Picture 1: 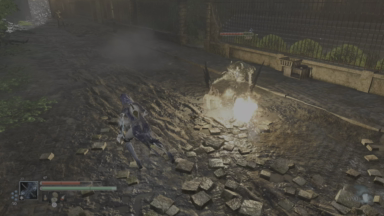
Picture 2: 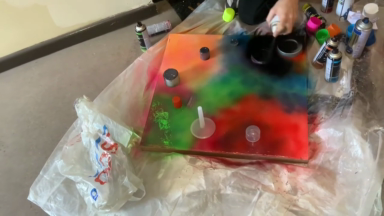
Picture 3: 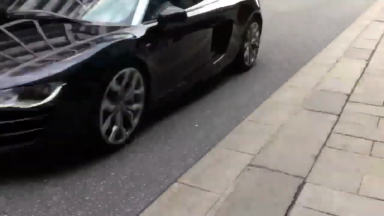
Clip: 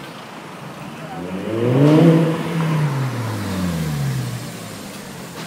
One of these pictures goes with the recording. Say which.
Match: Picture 3